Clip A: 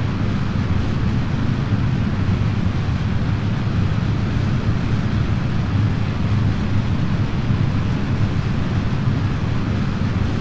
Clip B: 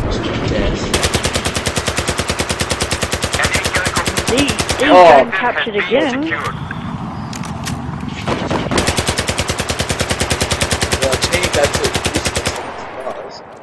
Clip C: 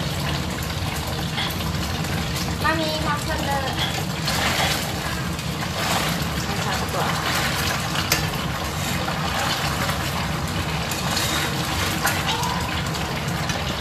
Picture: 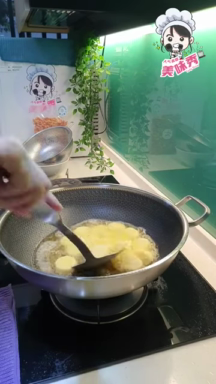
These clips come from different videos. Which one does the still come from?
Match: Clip C